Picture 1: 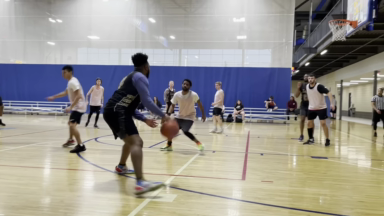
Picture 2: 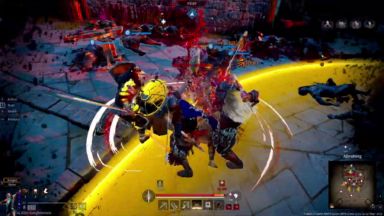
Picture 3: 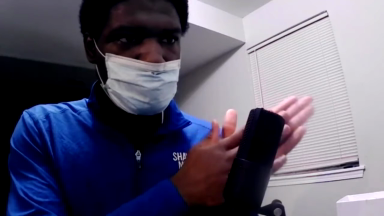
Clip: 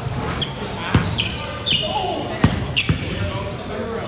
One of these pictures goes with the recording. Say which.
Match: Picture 1